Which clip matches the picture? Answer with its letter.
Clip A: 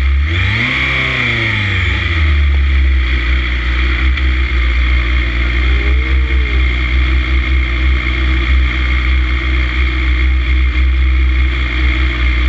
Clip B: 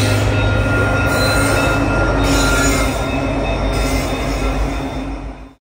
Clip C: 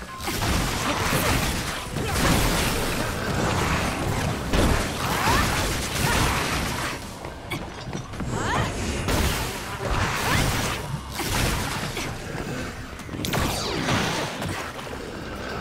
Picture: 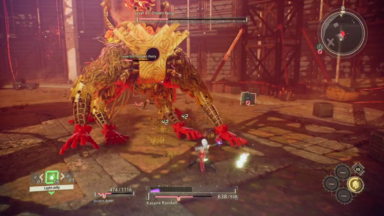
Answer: C